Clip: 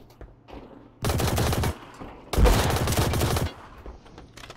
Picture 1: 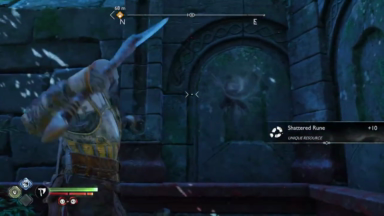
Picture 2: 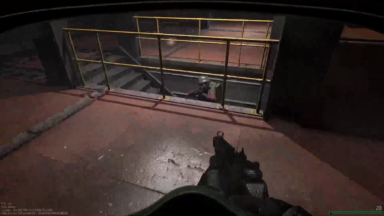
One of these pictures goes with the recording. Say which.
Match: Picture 2